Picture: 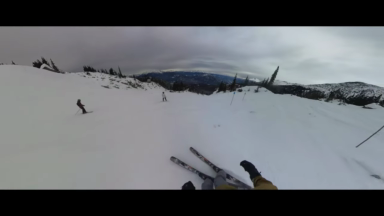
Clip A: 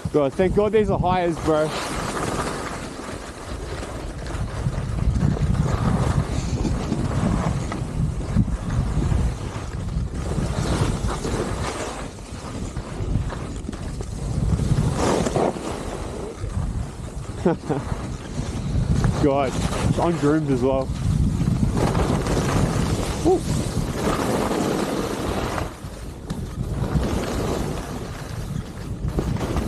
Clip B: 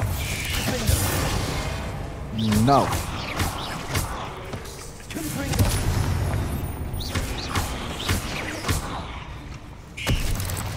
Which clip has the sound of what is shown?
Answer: A